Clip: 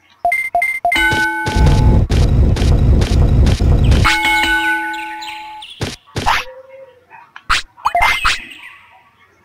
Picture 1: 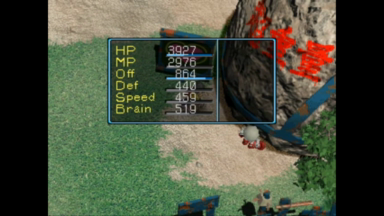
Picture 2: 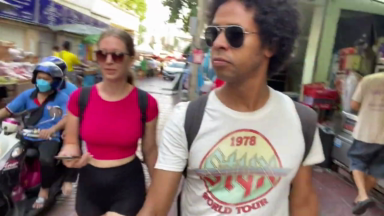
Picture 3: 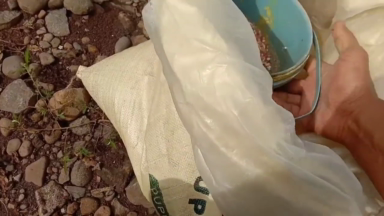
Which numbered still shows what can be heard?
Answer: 1